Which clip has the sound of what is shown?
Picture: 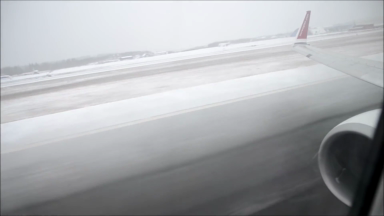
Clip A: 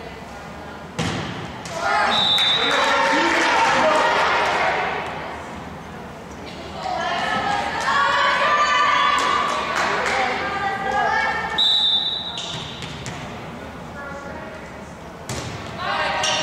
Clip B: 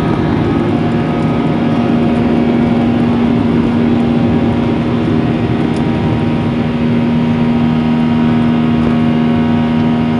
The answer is B